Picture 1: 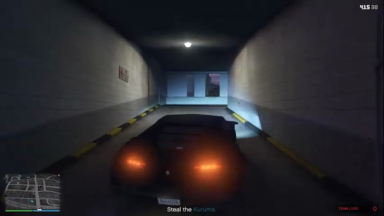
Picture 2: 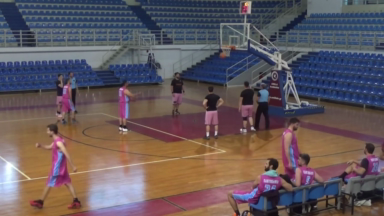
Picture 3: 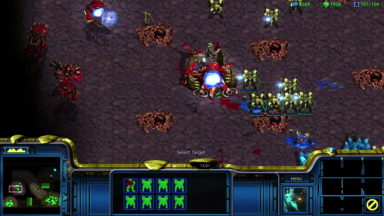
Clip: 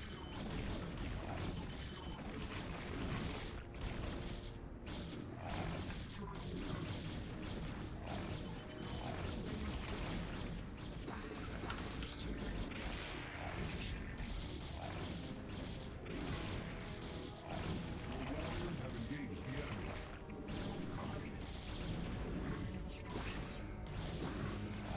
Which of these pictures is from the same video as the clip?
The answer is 3